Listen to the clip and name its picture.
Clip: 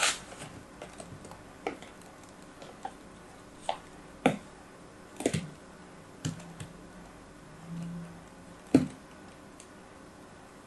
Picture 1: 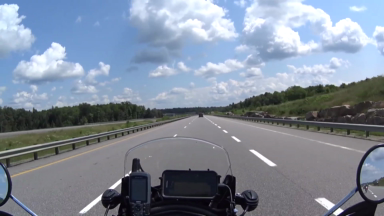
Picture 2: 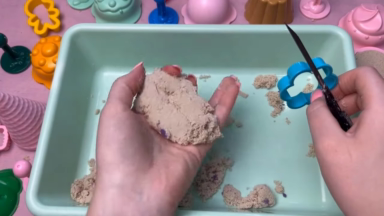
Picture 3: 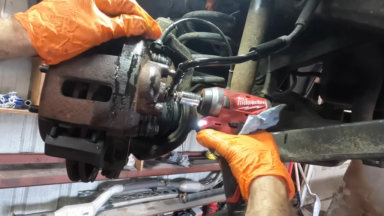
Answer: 2